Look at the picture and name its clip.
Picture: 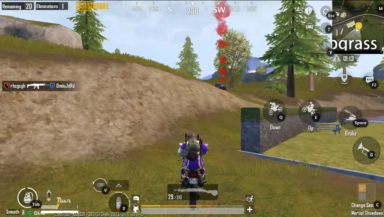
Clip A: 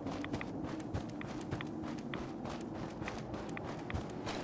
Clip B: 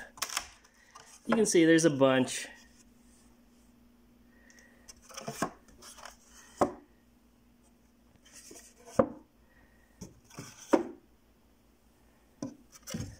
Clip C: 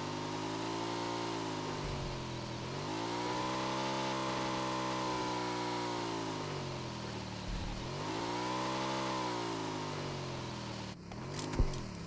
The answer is C